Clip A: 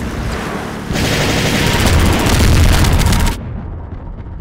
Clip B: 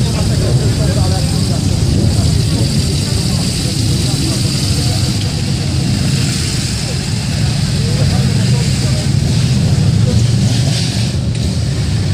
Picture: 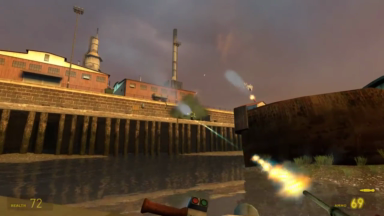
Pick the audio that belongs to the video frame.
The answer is A